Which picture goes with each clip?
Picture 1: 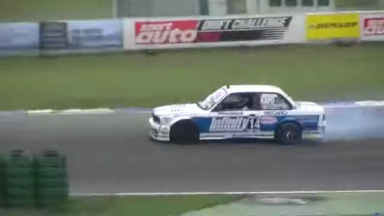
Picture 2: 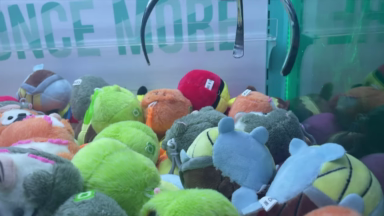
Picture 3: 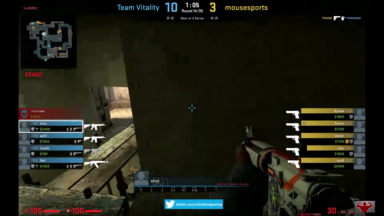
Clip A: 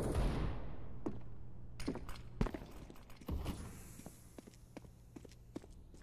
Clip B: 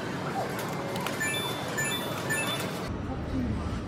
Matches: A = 3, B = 2